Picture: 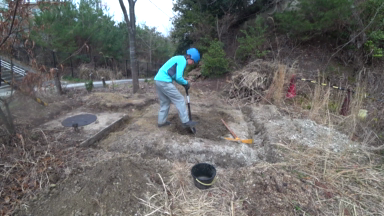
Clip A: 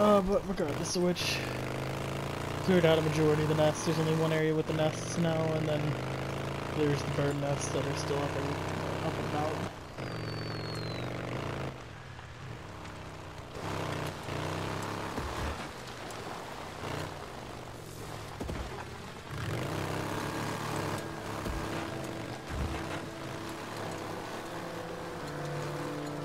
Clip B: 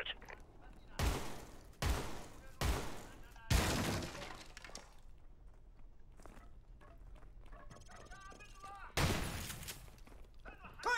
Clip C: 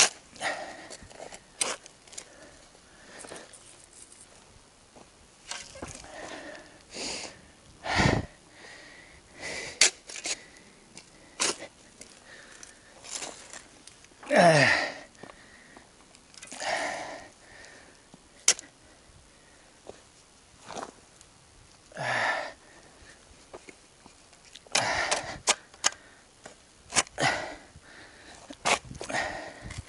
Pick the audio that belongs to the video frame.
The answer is C